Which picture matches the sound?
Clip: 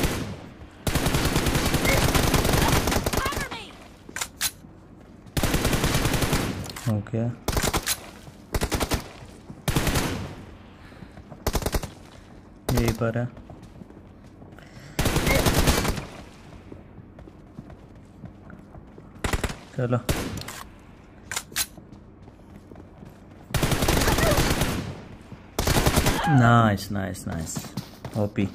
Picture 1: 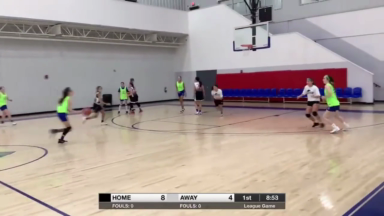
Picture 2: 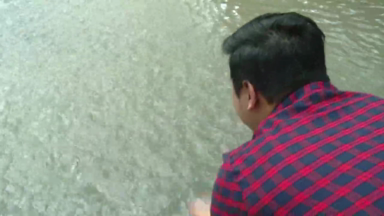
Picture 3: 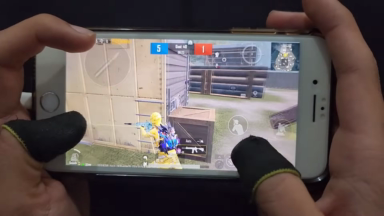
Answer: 3